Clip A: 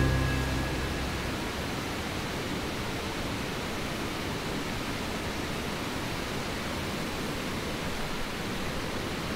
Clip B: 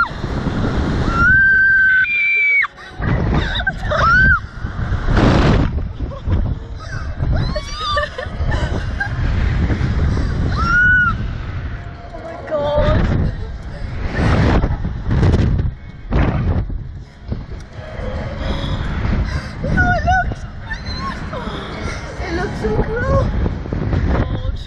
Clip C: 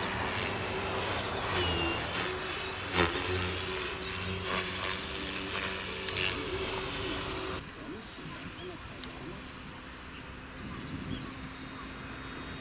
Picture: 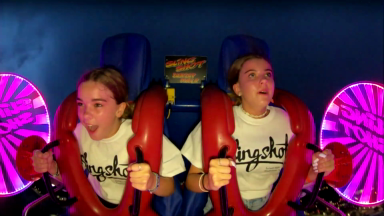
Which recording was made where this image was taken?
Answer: B